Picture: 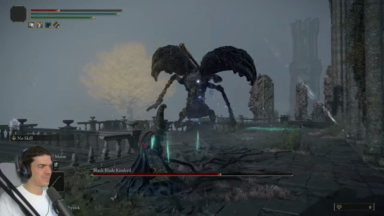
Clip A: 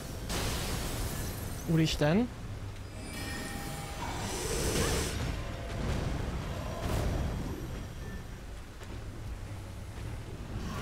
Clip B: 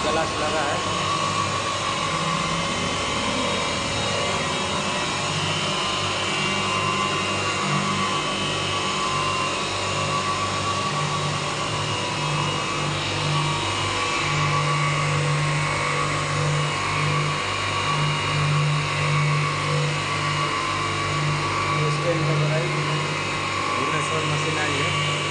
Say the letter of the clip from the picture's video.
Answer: A